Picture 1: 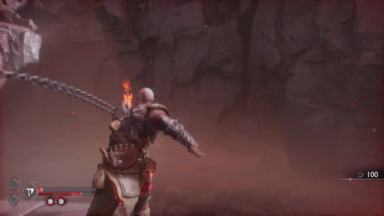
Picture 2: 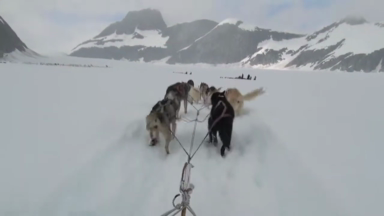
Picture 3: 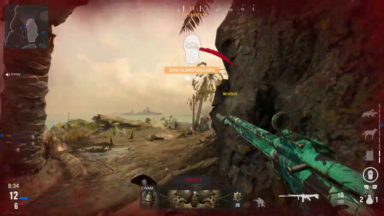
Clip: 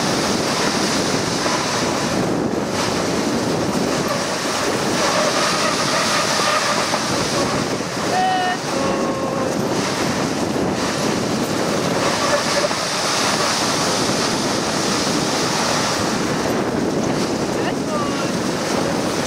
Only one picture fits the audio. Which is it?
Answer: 2